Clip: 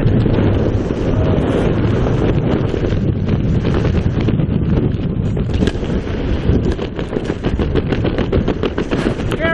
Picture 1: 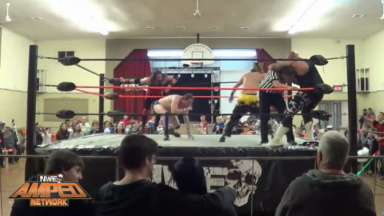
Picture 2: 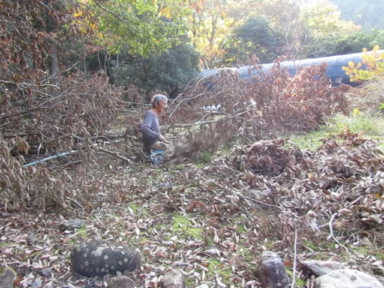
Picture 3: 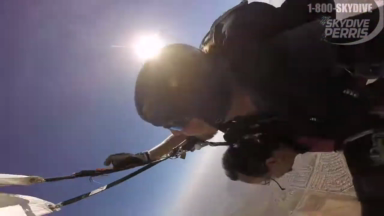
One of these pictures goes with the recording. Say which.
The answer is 3